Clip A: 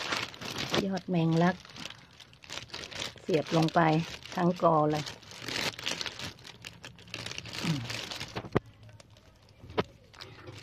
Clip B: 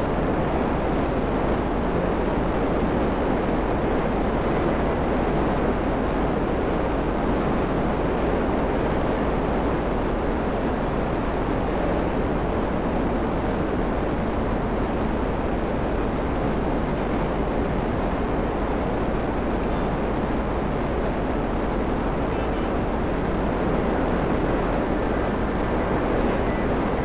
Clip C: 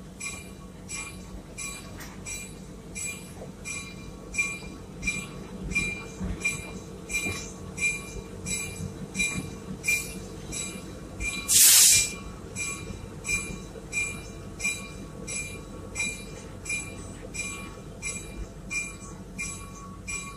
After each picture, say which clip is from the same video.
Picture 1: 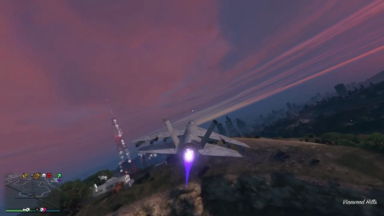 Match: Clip B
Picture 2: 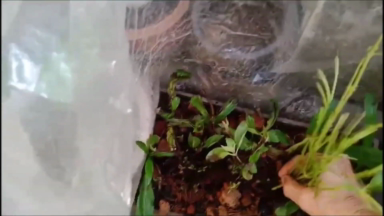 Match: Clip A